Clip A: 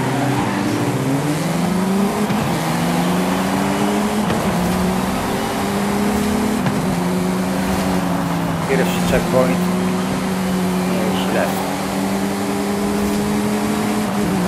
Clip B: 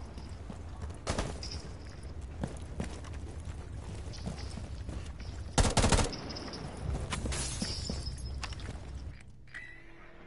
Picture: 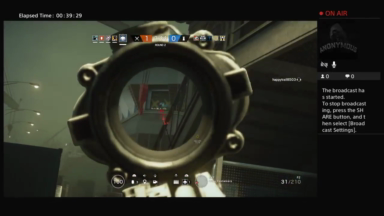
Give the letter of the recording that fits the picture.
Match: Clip B